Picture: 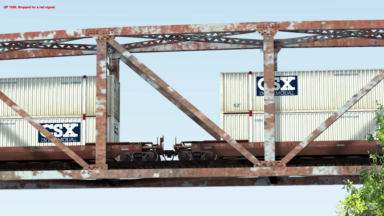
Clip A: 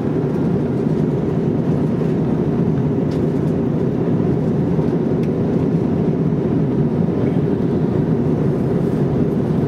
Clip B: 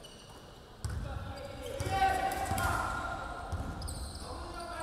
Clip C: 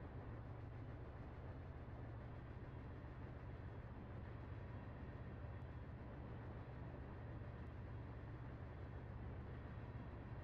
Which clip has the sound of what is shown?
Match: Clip C